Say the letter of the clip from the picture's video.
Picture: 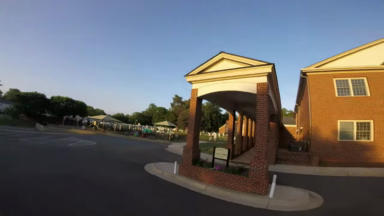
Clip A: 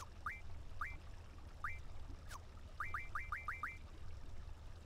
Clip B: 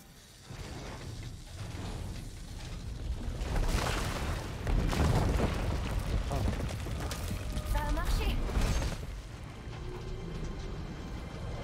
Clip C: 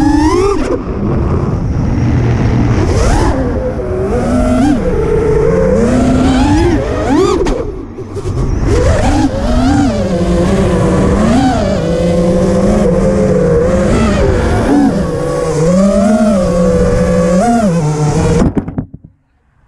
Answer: C